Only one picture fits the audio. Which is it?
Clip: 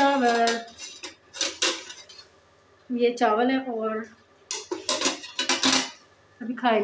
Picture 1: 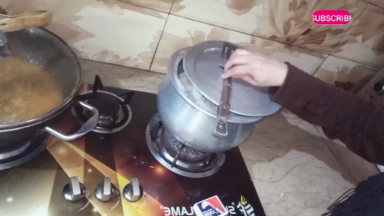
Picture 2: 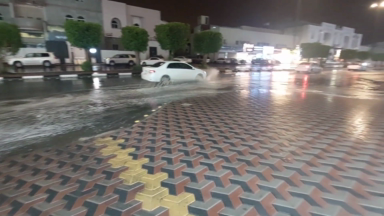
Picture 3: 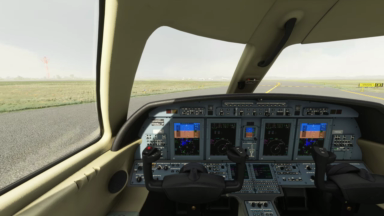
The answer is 1